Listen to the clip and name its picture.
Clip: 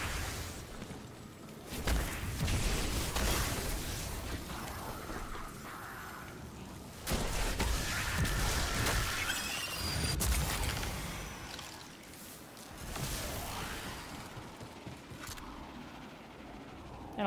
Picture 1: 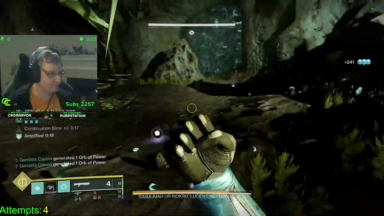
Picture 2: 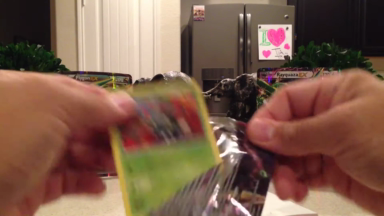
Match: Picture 1